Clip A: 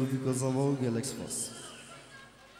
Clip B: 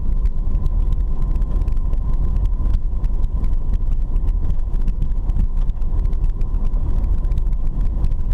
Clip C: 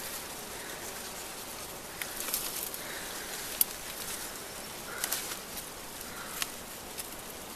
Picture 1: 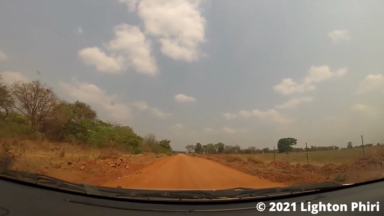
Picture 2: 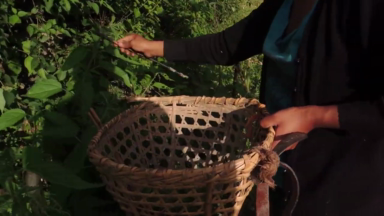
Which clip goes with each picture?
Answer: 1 B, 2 C